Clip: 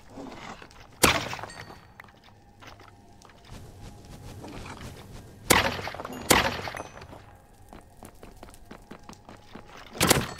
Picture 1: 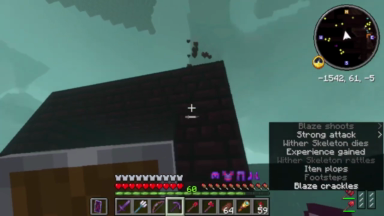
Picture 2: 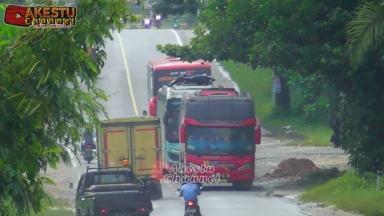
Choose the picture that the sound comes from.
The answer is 1